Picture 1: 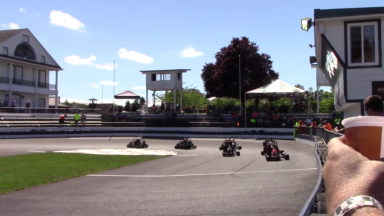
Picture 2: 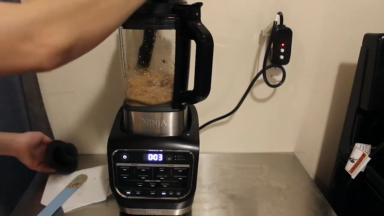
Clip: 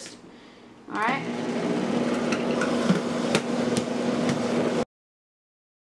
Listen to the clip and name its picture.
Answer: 2